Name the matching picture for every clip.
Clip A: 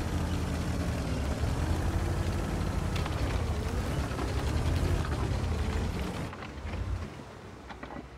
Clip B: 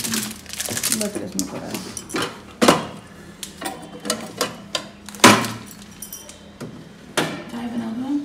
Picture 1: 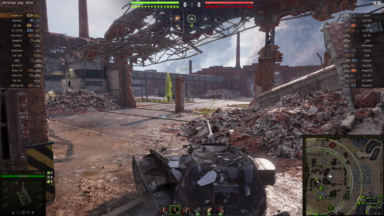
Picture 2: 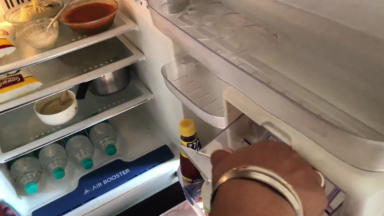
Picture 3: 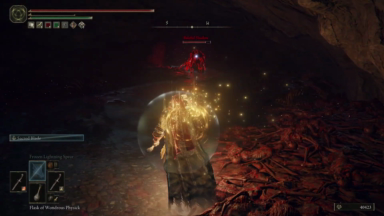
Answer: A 1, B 2